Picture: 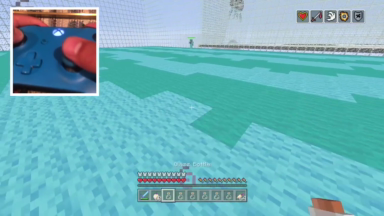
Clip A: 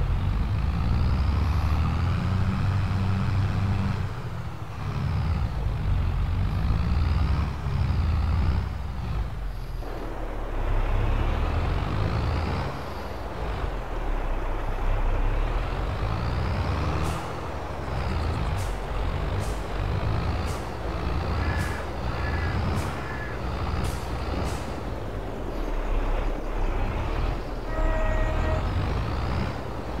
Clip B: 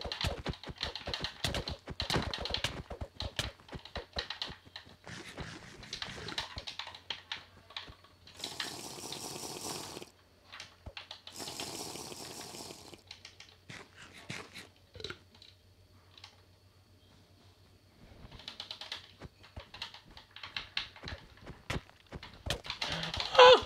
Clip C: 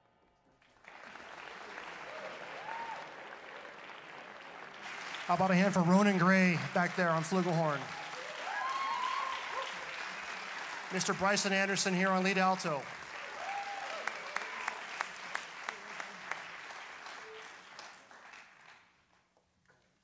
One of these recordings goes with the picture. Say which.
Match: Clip B